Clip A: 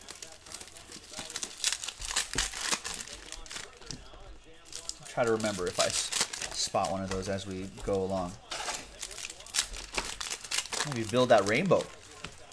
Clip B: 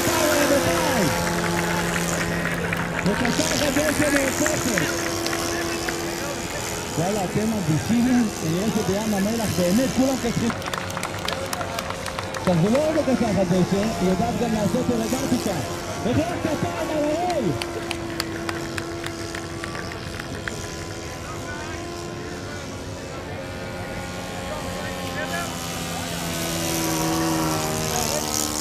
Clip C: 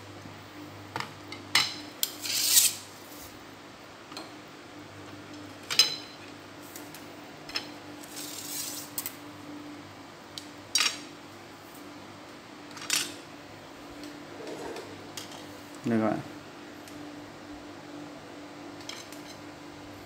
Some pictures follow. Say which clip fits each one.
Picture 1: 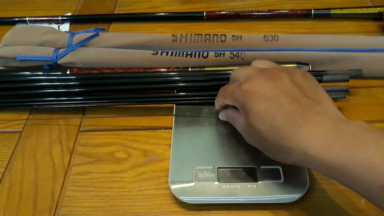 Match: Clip C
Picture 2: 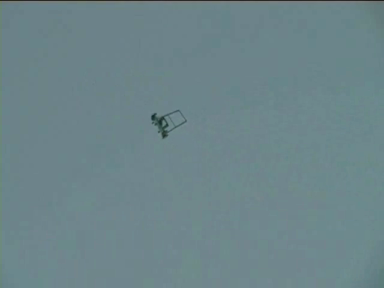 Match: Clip B